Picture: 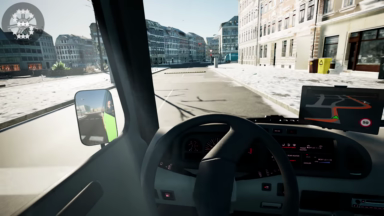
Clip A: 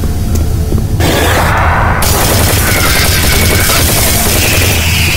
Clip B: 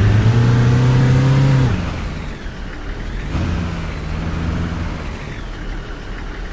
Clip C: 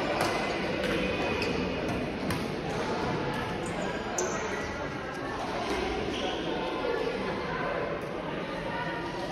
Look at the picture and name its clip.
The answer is B